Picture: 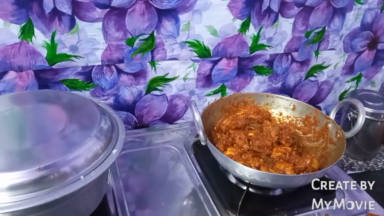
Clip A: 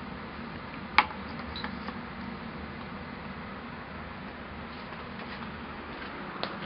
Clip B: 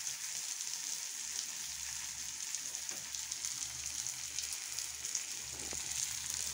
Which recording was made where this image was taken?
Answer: B